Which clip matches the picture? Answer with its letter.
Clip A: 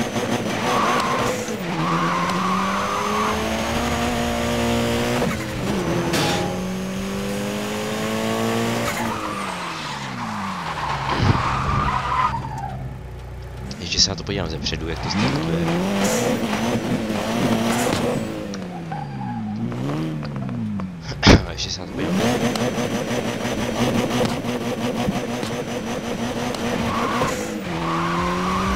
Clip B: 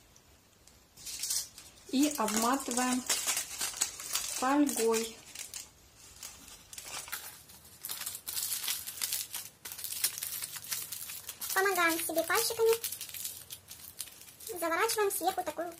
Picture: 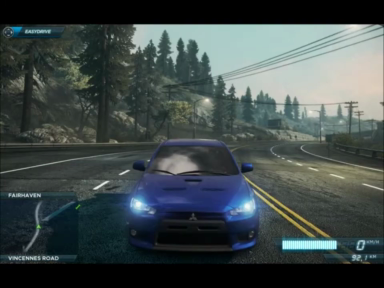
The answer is A